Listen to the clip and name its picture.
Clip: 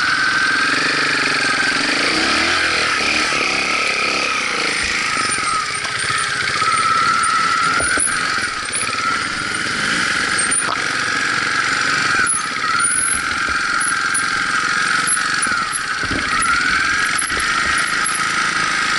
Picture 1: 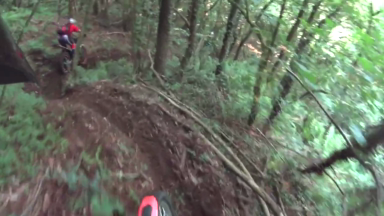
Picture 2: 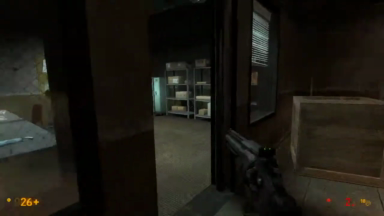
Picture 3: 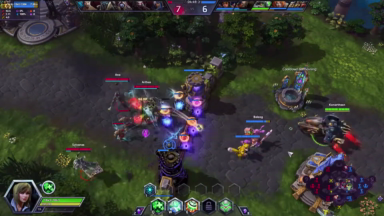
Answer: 1